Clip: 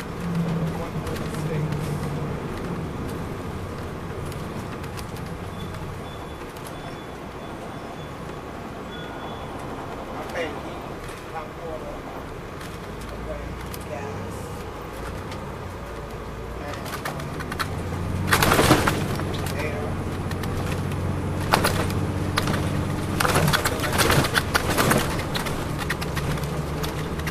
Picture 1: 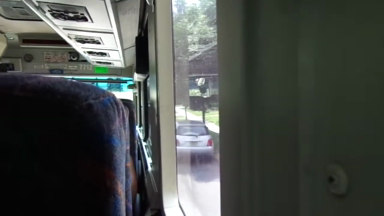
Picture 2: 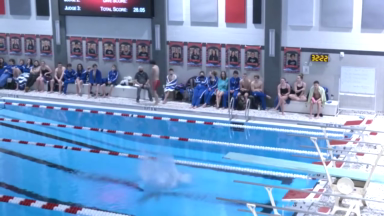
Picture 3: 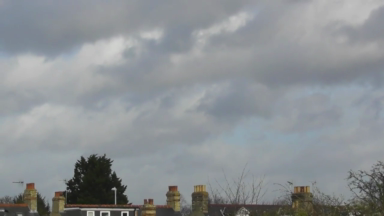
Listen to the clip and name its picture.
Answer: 1